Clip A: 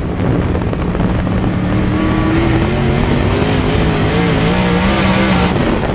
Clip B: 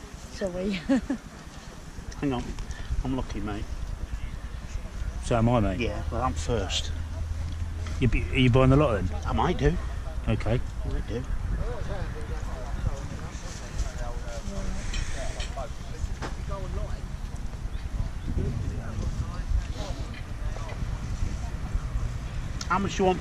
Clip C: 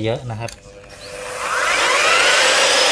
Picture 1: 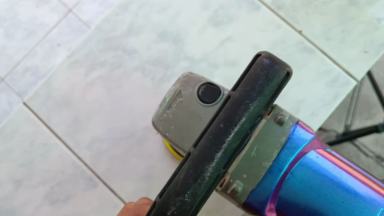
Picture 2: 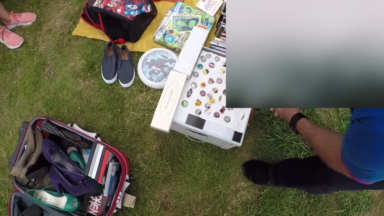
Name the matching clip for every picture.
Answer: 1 C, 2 B